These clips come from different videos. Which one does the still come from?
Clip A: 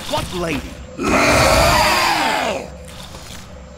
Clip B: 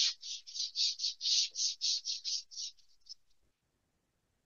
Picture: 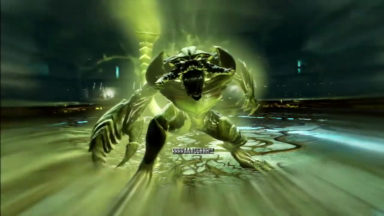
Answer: A